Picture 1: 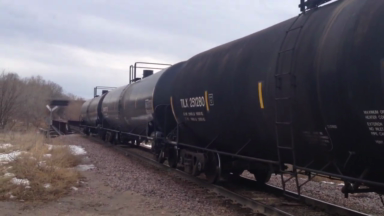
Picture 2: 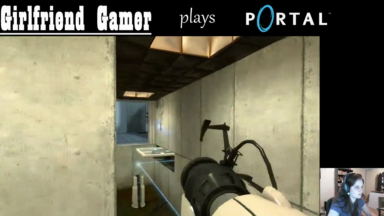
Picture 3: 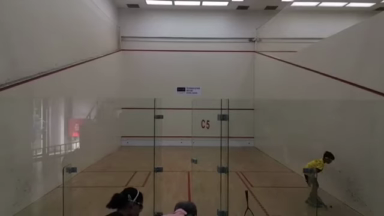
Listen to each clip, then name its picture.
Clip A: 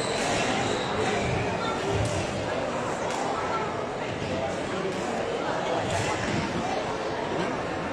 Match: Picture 3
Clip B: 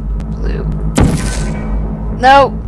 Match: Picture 2